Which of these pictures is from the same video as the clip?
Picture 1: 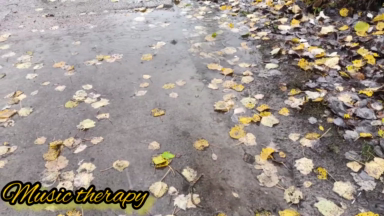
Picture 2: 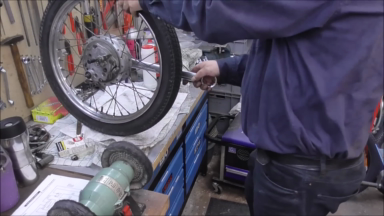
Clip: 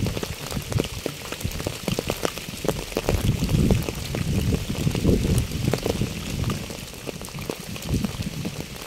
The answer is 1